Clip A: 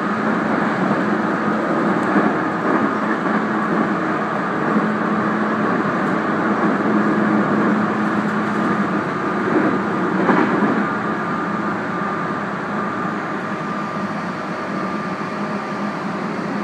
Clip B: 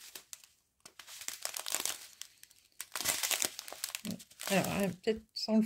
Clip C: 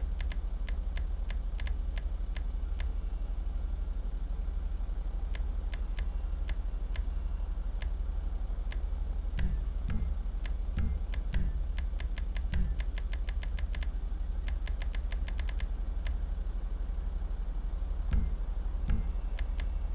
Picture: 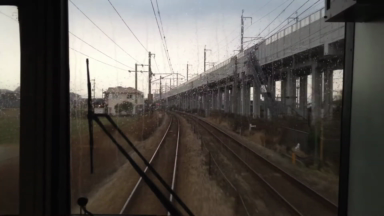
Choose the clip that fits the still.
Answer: A